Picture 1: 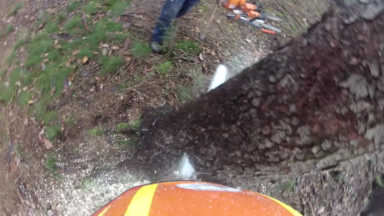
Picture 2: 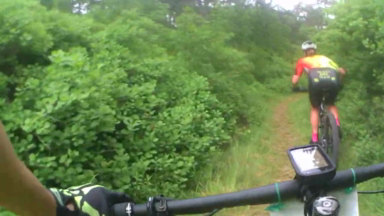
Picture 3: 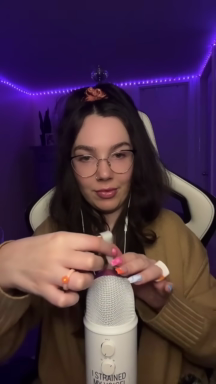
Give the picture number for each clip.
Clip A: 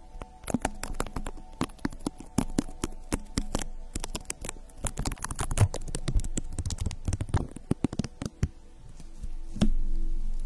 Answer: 3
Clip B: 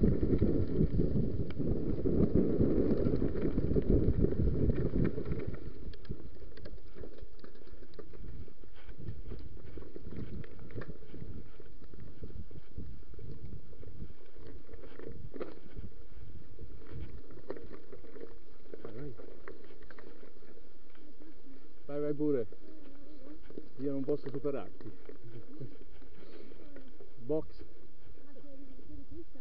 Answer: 2